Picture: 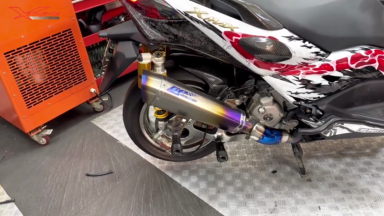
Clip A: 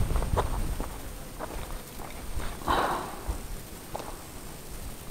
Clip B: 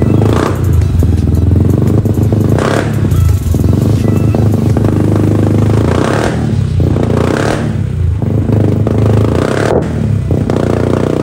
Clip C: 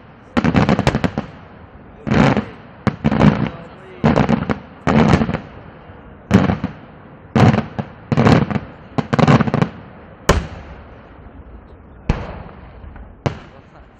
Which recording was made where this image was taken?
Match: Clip B